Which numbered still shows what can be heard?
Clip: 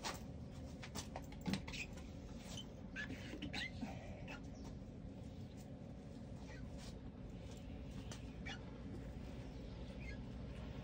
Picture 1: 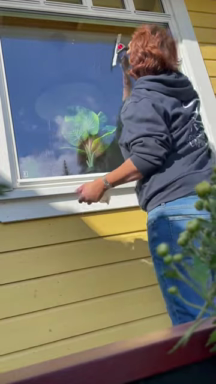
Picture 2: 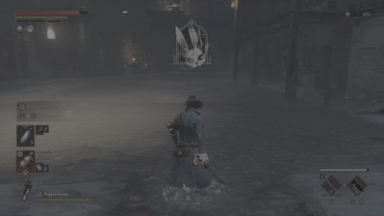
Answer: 1